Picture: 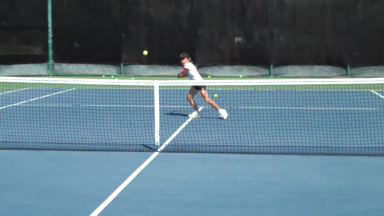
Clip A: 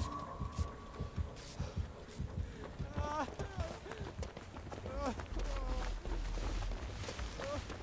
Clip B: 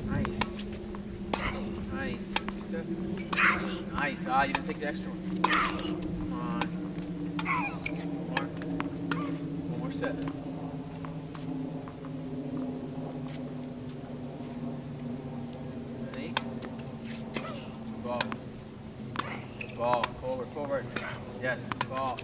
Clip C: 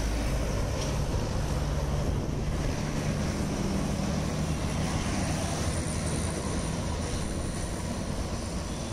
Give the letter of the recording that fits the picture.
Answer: B